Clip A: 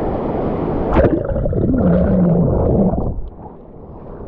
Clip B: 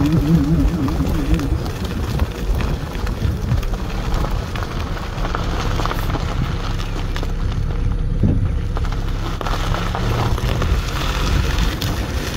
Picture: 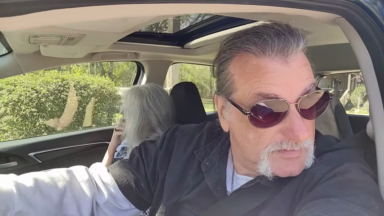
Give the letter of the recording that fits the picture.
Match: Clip B